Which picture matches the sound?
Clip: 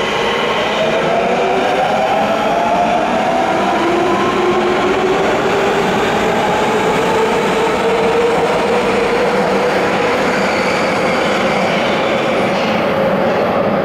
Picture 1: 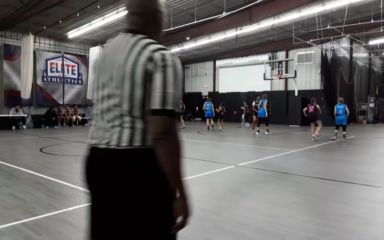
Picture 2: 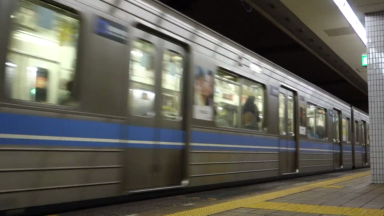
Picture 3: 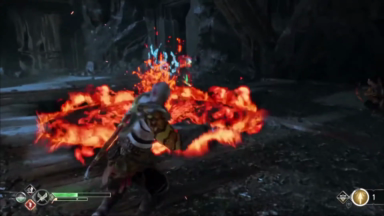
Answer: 2